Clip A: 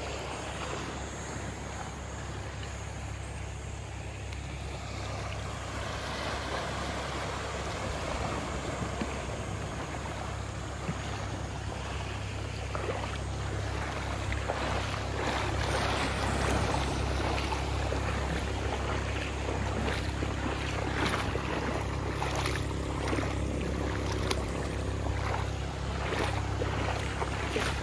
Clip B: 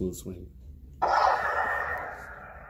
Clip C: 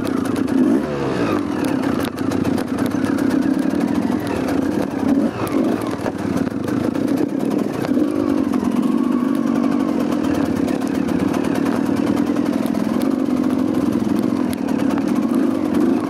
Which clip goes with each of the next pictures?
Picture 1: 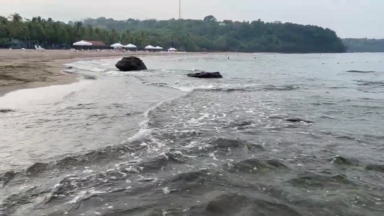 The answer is A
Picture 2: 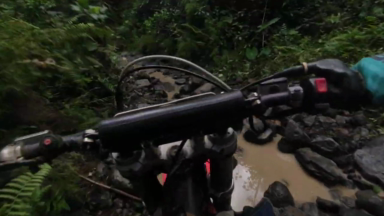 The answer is C